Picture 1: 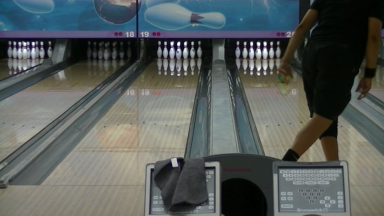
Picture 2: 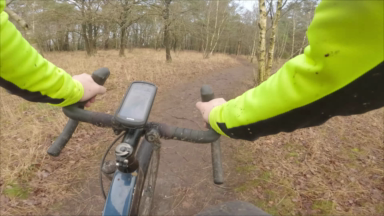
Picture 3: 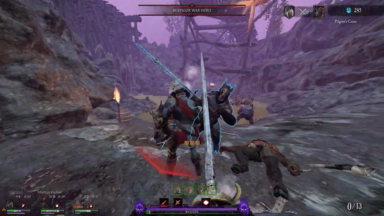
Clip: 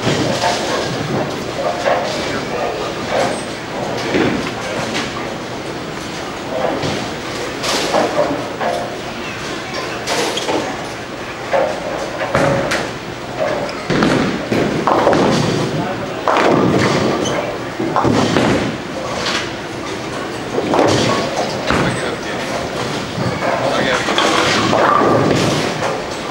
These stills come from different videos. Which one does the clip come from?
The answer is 1